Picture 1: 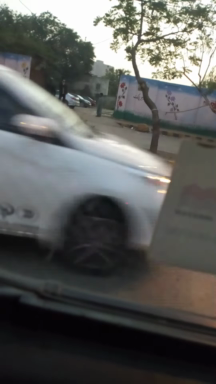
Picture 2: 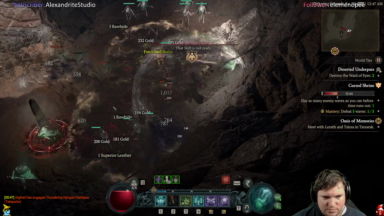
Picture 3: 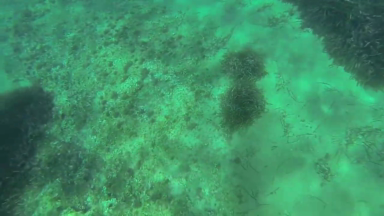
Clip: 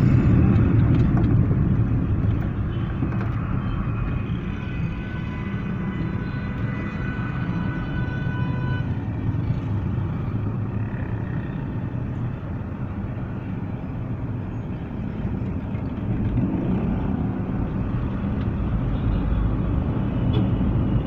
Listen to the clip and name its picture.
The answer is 1